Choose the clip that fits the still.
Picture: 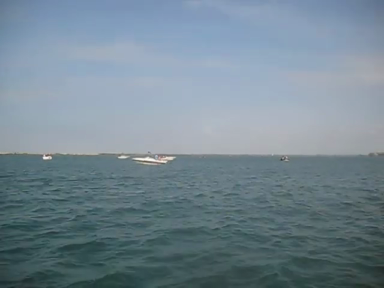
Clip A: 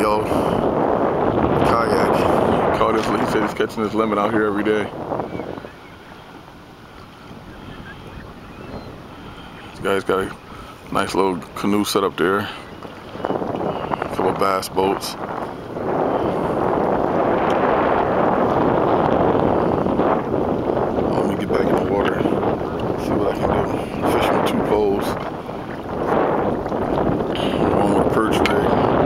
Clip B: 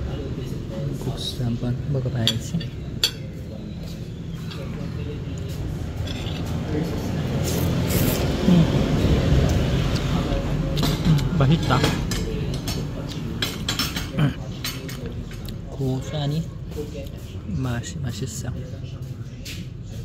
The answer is A